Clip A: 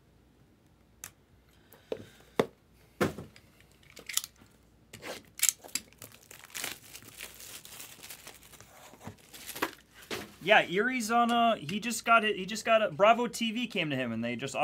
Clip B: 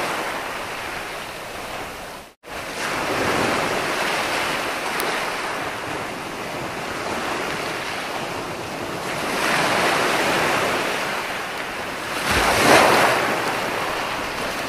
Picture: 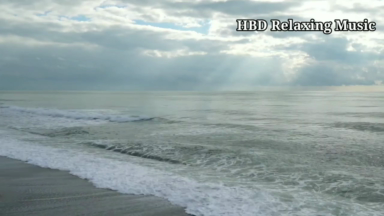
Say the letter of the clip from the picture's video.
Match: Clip B